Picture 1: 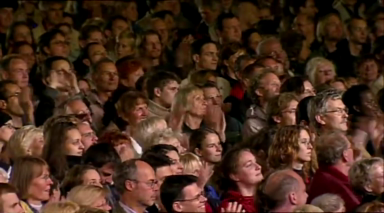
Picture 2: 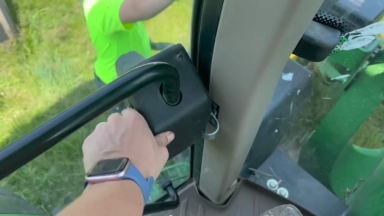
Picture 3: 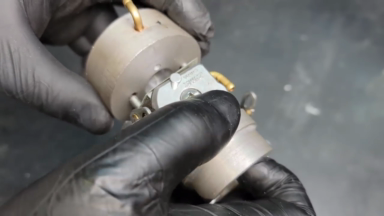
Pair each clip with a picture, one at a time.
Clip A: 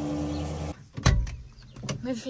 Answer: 2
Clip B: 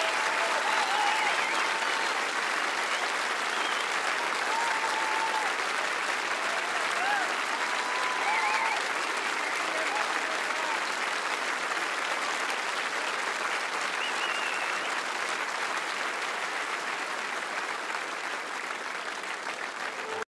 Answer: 1